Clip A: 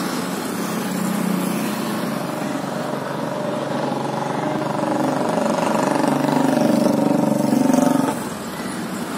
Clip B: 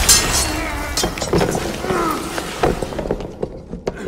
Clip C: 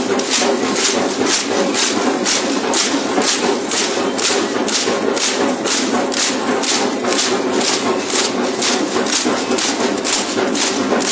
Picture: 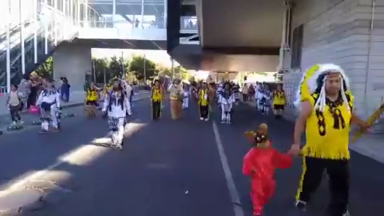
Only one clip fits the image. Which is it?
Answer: C